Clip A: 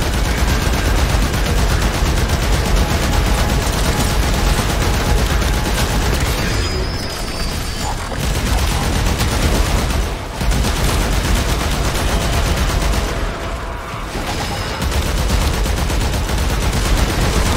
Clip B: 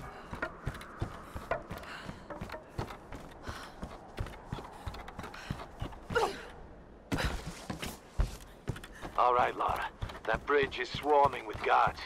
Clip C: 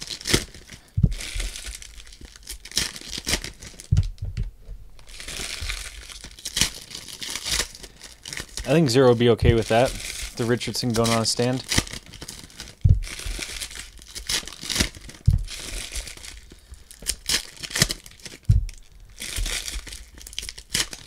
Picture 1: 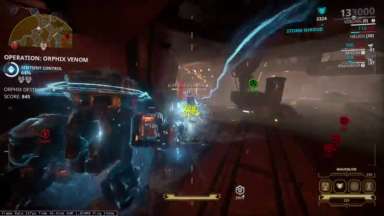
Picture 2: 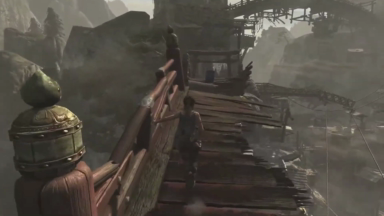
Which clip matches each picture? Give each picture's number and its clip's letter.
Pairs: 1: A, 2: B